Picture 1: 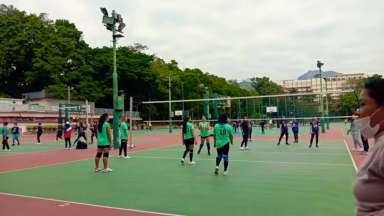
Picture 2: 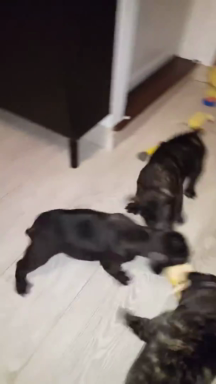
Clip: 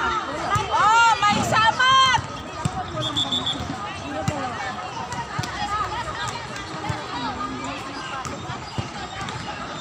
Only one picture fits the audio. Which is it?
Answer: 1